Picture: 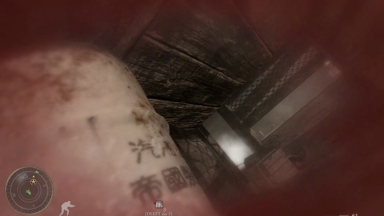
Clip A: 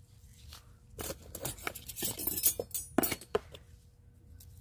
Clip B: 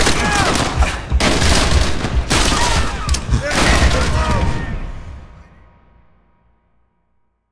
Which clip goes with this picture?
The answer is B